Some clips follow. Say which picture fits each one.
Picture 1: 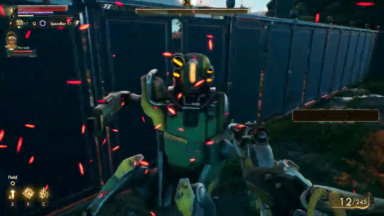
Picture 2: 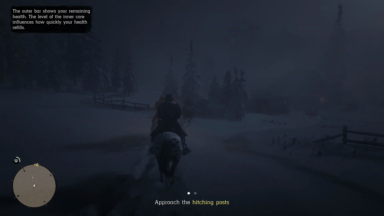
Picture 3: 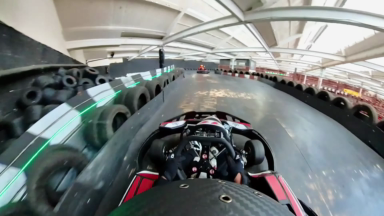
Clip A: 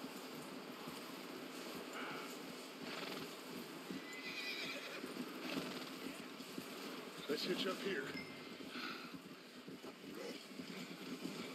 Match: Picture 2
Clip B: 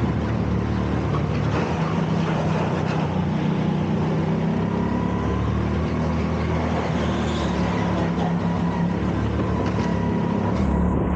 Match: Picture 3